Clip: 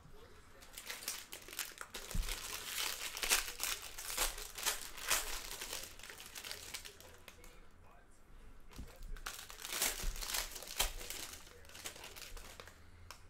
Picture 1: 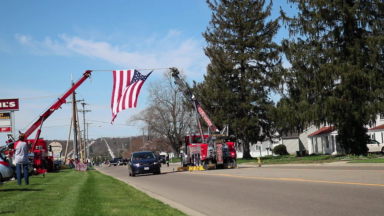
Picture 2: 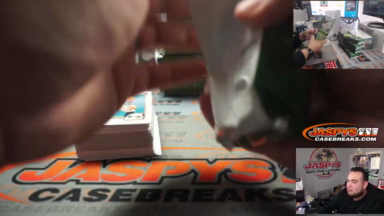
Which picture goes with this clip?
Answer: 2